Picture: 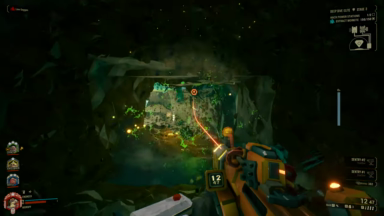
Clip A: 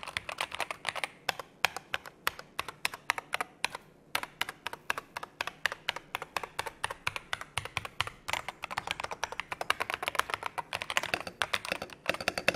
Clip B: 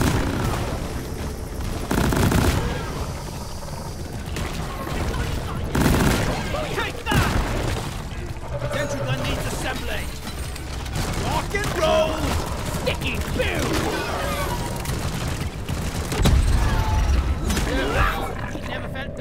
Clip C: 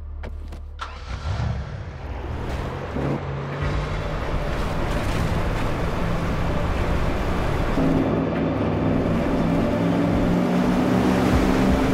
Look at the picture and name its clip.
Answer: B